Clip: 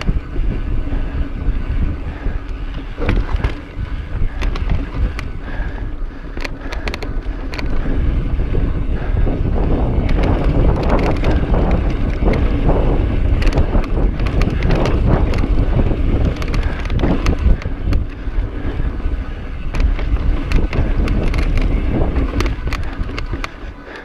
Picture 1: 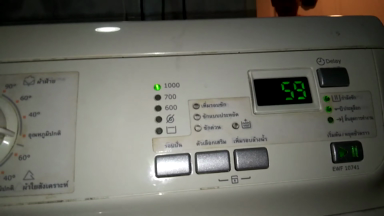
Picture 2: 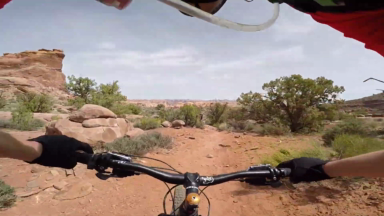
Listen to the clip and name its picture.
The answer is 2